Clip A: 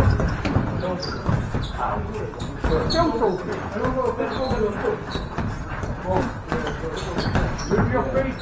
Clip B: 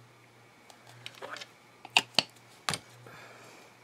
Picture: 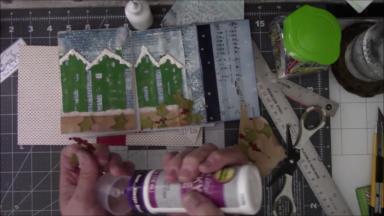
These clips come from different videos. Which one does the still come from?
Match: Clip B